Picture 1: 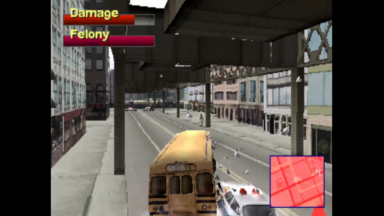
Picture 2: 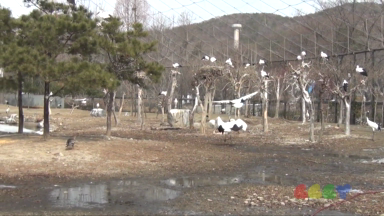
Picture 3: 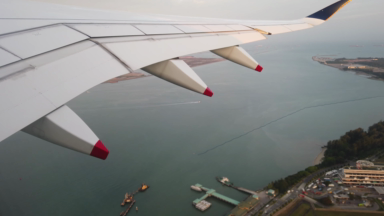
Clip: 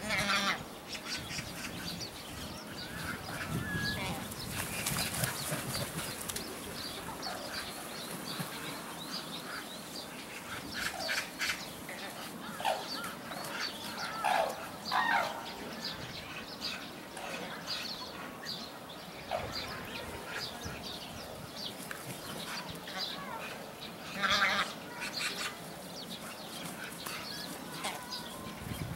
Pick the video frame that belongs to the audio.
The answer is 2